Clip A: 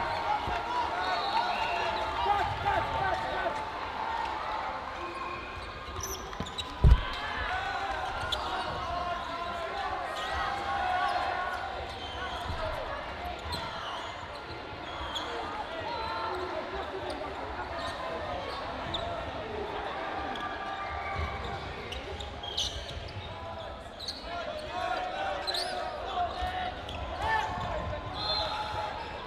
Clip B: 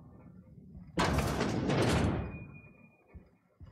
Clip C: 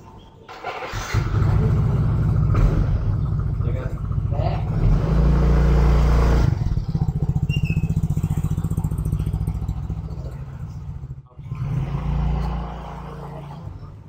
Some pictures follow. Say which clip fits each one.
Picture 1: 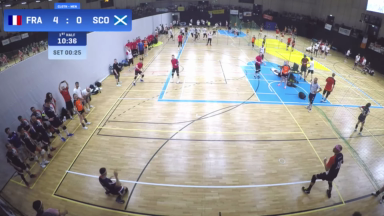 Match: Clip A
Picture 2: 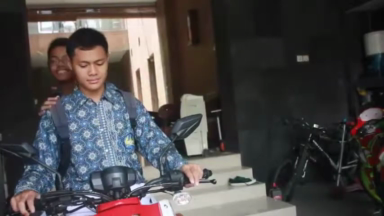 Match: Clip C